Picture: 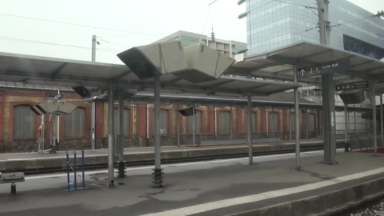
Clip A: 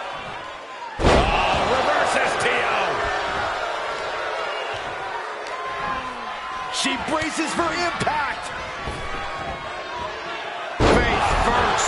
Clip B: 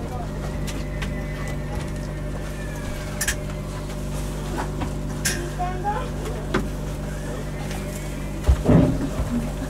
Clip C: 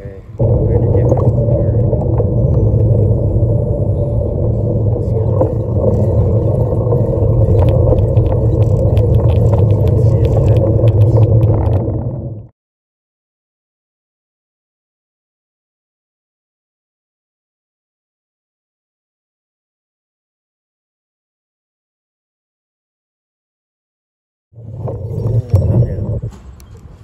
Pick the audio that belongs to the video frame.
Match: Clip B